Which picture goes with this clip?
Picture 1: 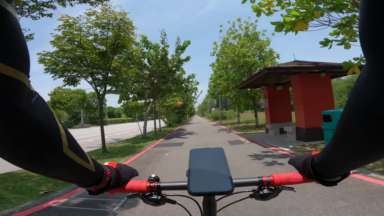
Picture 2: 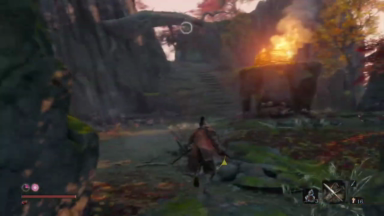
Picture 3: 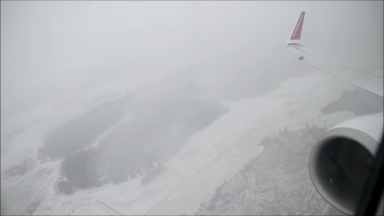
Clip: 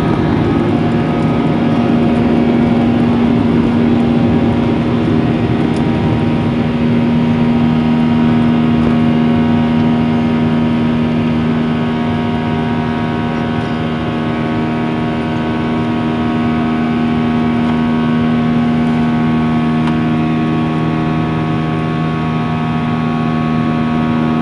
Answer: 3